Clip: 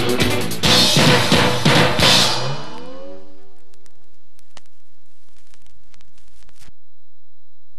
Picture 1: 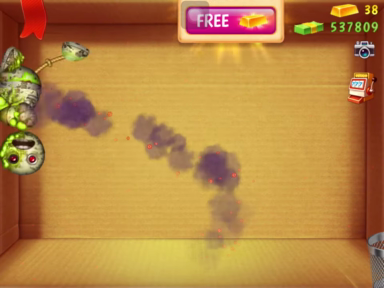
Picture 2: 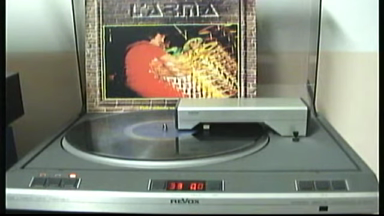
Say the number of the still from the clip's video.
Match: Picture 2